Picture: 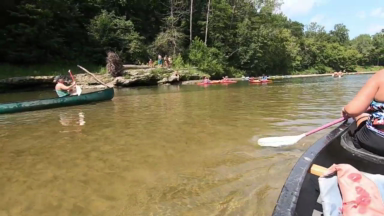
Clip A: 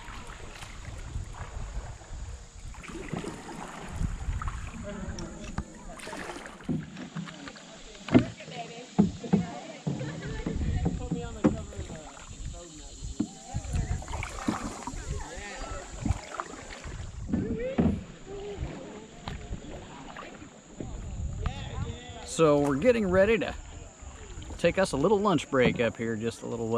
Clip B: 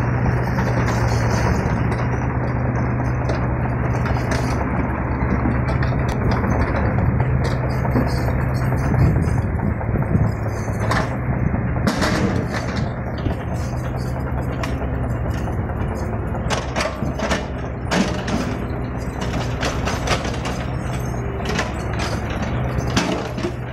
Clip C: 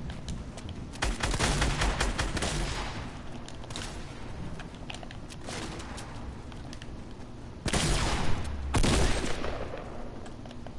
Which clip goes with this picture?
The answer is A